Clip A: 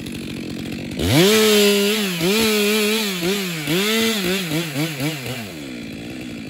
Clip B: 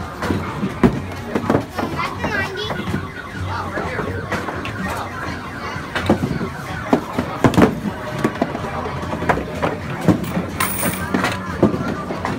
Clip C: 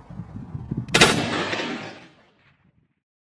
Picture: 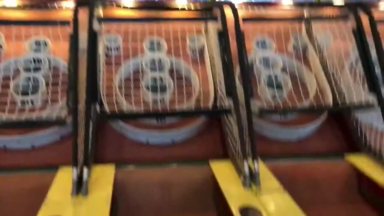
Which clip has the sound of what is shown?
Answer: B